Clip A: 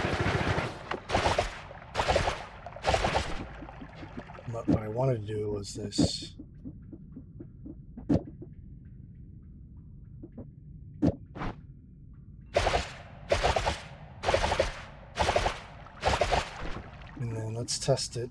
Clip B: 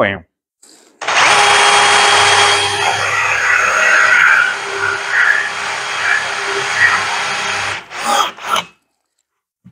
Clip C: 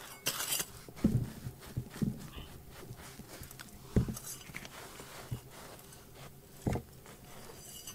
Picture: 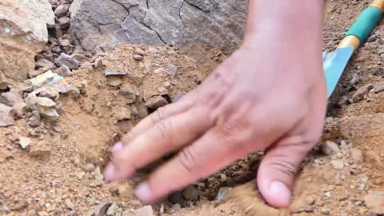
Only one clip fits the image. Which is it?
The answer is C